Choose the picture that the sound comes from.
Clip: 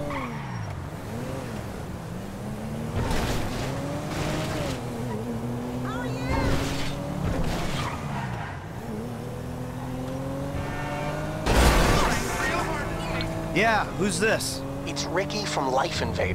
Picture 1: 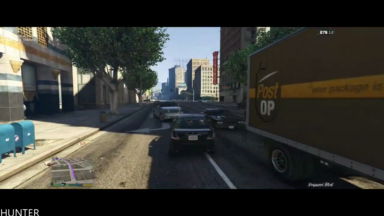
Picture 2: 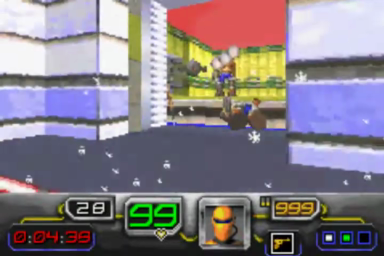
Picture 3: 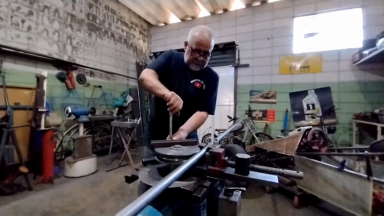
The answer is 1